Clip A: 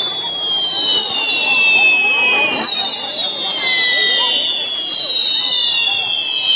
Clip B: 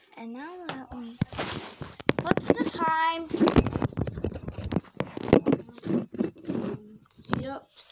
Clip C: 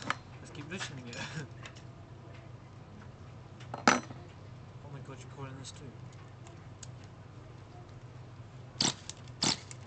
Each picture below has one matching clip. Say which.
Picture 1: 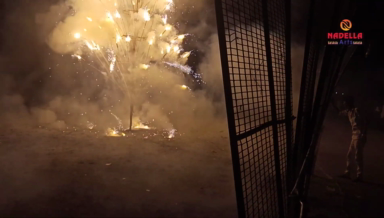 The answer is A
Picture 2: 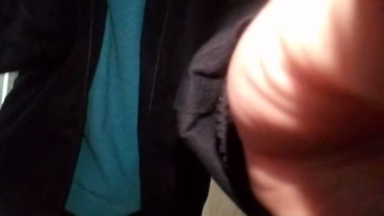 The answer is B